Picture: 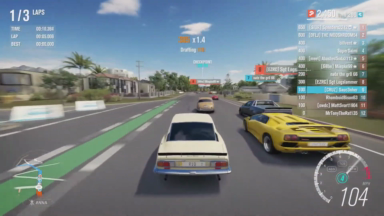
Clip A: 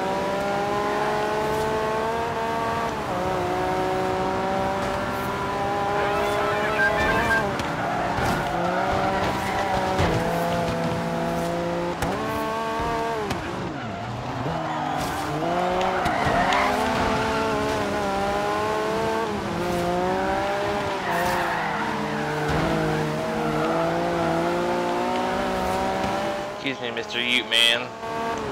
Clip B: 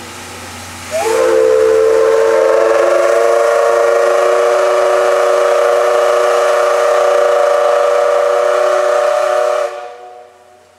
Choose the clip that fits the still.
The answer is A